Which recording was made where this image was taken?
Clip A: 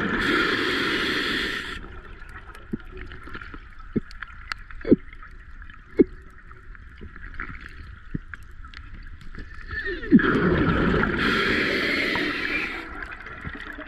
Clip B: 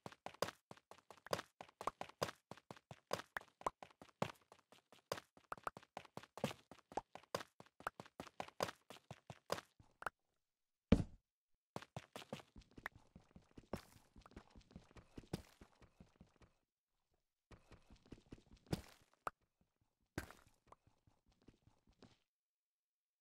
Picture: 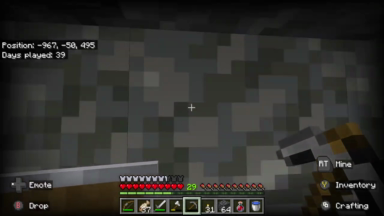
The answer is B